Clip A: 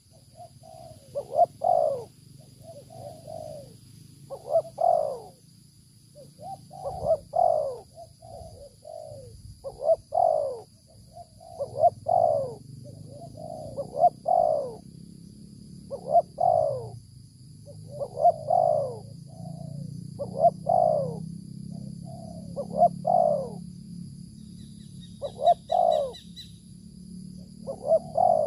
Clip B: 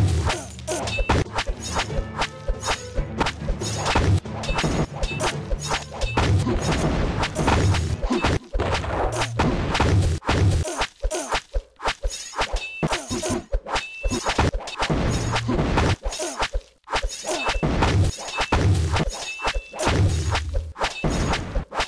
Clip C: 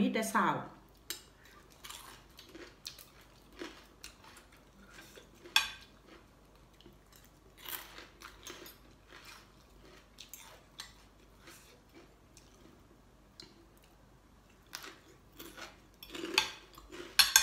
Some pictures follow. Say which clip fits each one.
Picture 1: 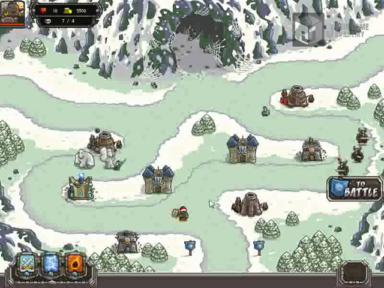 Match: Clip B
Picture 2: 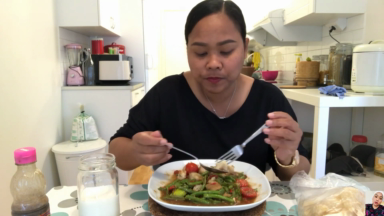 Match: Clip C